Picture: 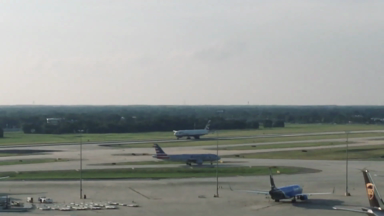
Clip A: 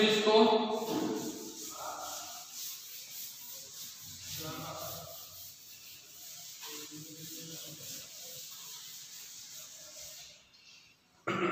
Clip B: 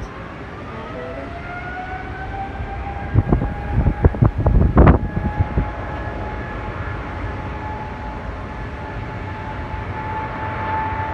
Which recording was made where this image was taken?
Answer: B